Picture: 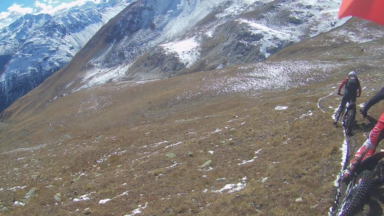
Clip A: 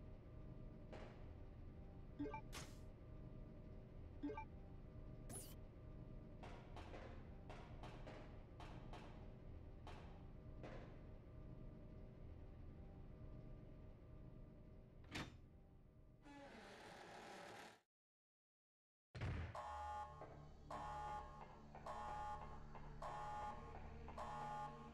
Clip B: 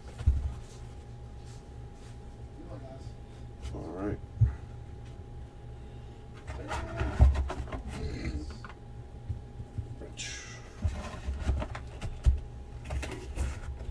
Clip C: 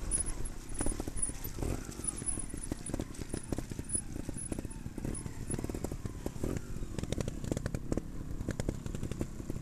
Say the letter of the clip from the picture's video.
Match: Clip C